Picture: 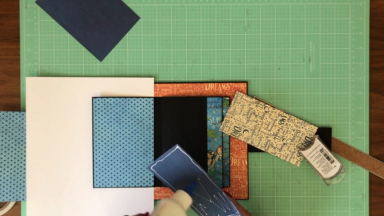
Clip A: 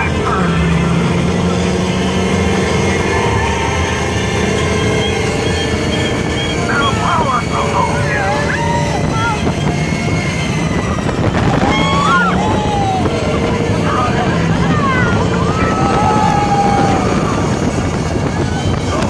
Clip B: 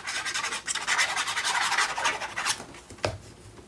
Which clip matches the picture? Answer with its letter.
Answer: B